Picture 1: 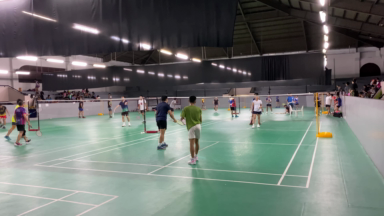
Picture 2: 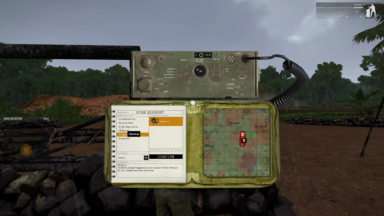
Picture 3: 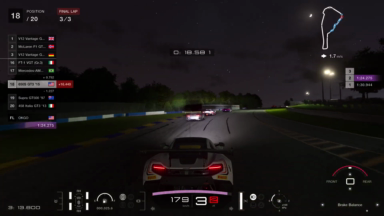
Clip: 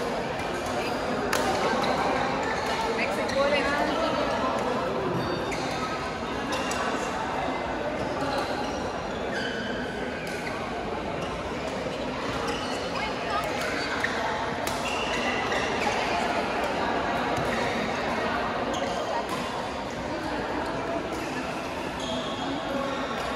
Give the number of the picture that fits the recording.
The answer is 1